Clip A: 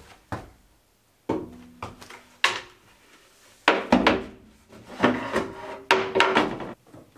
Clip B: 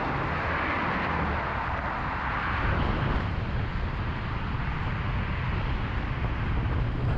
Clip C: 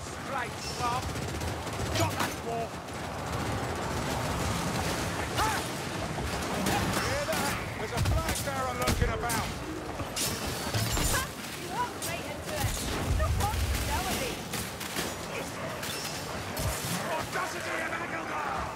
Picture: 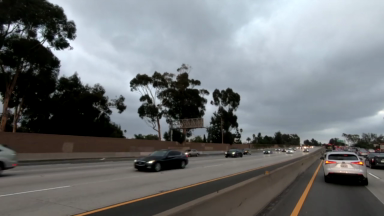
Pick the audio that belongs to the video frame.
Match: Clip B